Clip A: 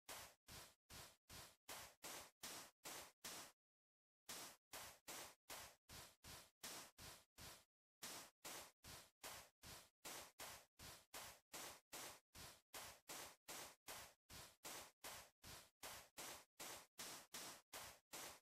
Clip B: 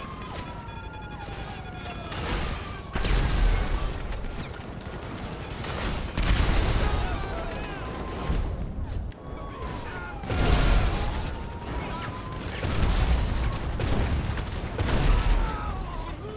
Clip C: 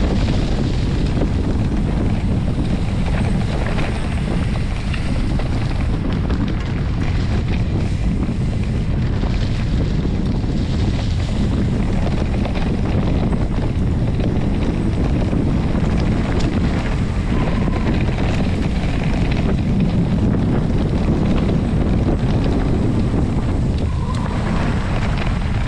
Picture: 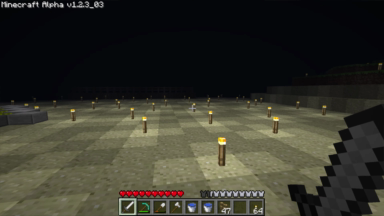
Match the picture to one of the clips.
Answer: A